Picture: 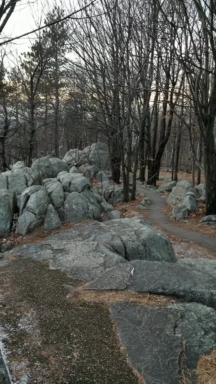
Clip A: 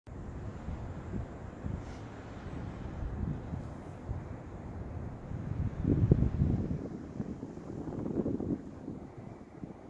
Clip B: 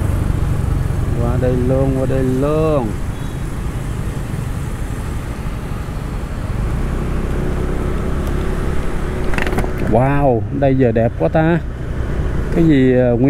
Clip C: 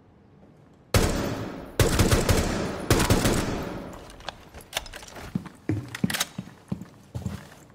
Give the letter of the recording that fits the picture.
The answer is A